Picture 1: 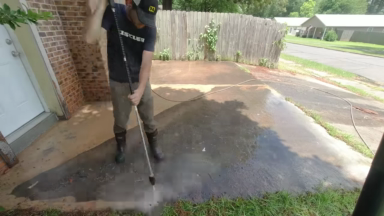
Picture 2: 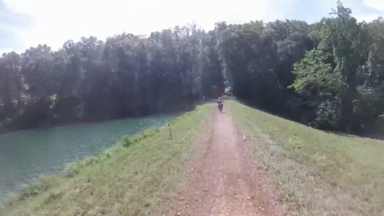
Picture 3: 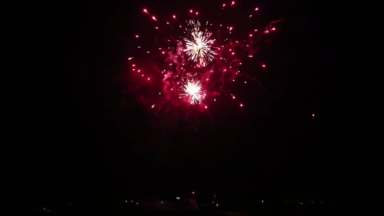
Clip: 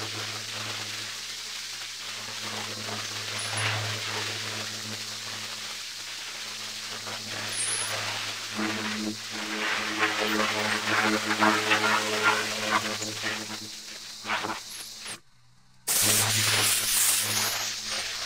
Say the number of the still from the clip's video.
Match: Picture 1